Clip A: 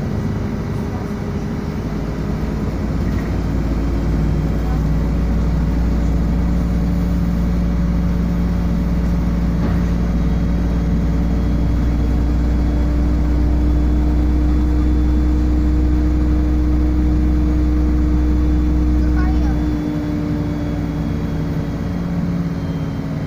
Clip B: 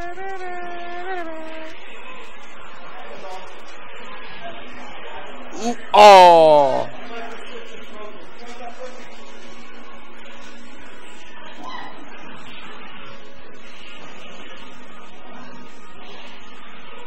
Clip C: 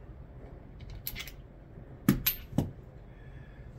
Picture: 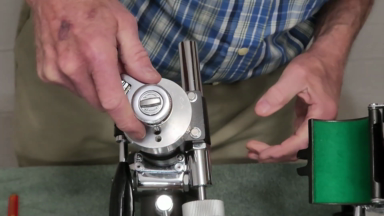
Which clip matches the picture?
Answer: C